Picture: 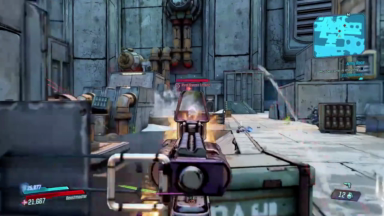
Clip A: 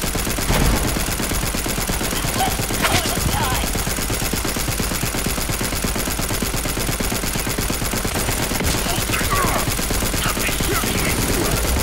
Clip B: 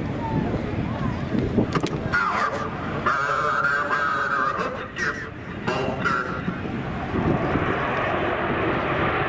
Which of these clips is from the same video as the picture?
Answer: A